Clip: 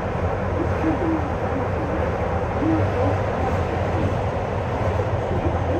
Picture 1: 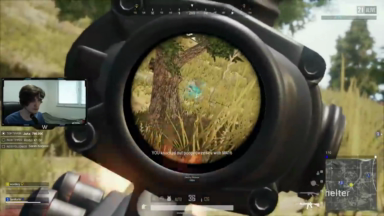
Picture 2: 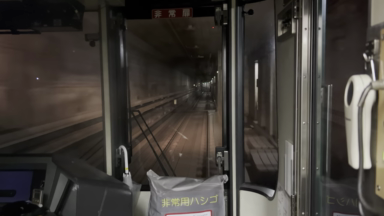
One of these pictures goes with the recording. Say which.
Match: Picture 2